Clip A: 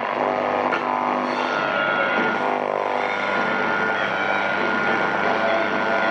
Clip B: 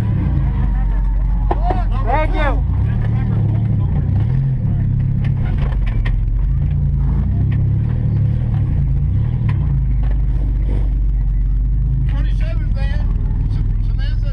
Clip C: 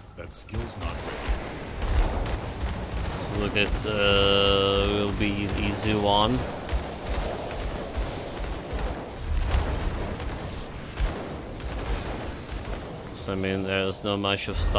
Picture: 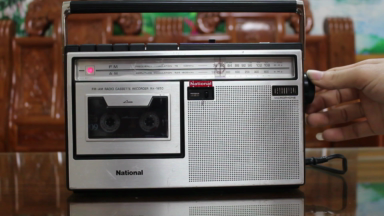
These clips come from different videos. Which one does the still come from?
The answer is A